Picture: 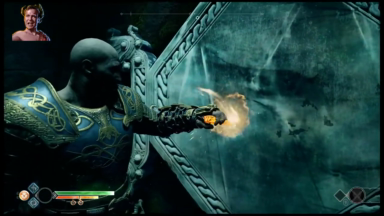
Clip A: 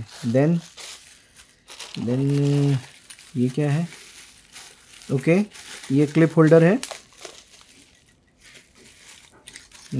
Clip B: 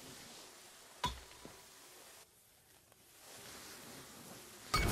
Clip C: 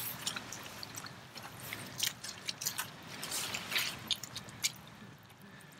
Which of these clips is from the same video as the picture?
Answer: B